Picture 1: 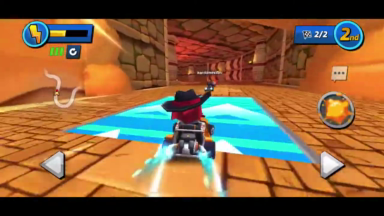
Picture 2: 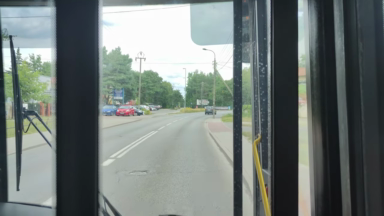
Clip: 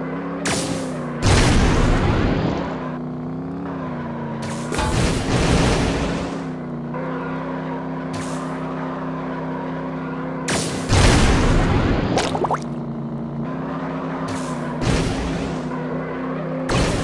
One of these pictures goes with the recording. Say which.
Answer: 1